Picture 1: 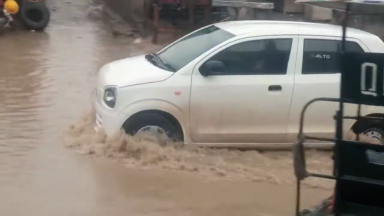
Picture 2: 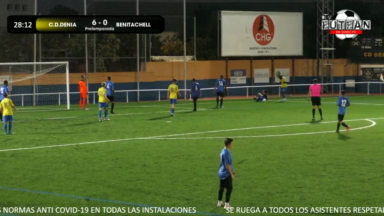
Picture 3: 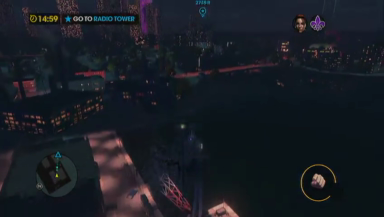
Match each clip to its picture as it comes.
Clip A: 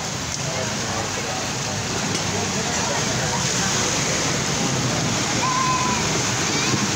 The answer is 1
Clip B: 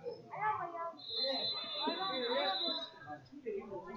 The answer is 2